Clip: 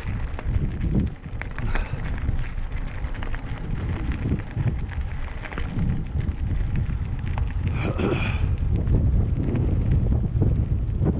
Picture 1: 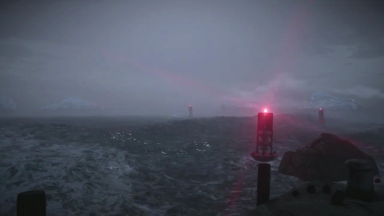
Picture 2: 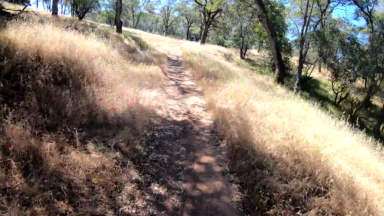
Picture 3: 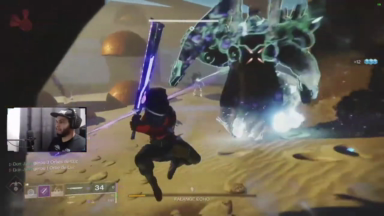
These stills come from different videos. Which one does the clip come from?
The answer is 2